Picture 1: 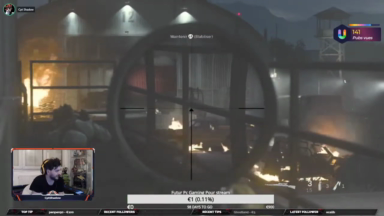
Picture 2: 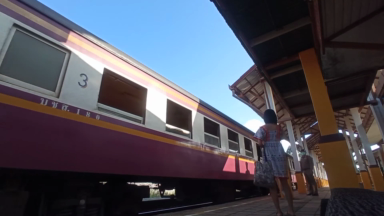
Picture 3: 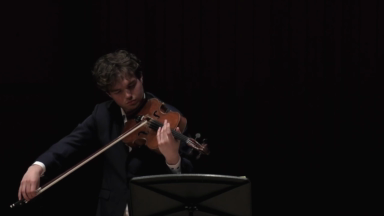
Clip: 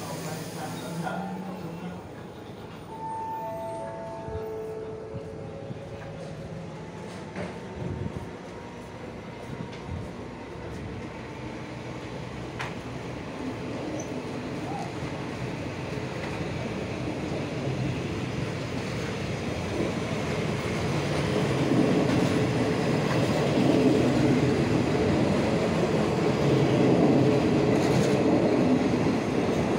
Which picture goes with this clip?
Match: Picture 2